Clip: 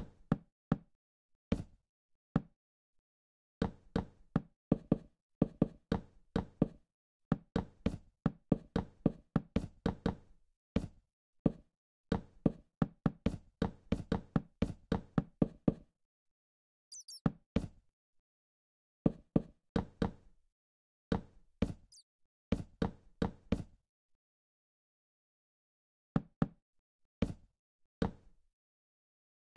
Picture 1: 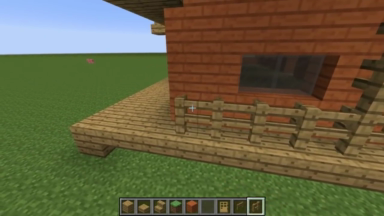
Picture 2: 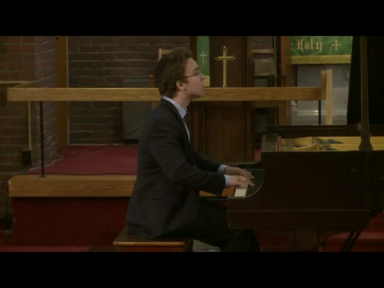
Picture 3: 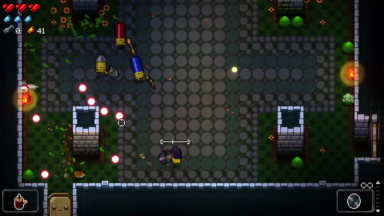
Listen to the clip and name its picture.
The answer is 1